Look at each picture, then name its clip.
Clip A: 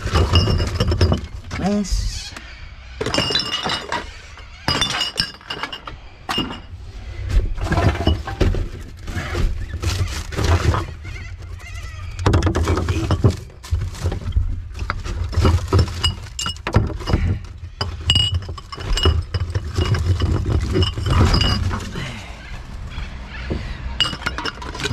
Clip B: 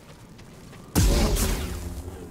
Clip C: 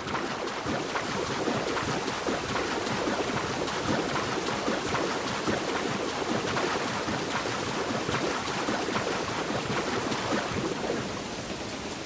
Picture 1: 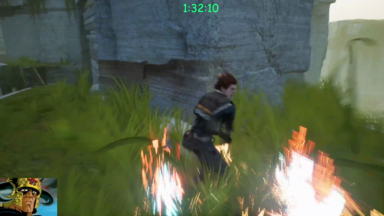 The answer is B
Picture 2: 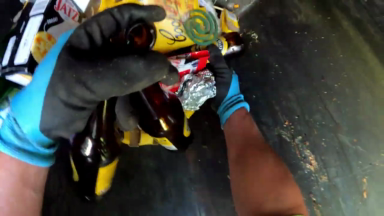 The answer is A